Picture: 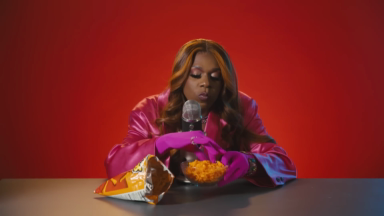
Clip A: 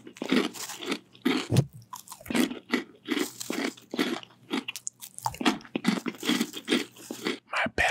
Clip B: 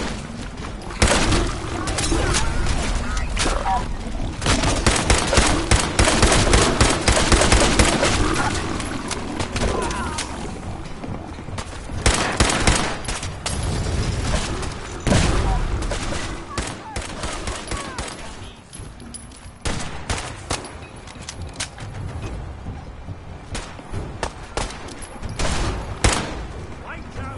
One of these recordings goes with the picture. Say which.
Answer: A